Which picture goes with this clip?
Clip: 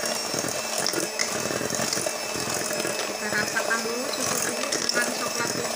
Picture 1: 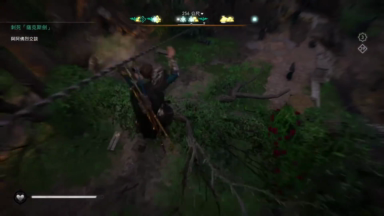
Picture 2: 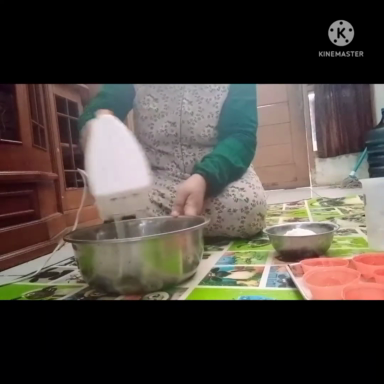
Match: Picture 2